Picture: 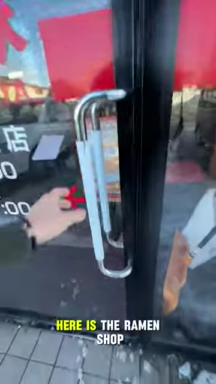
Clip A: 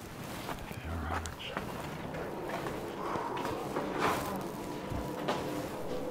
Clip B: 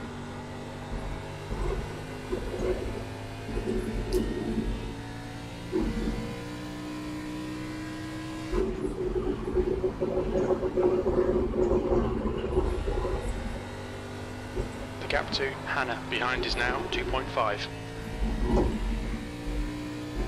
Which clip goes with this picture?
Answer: A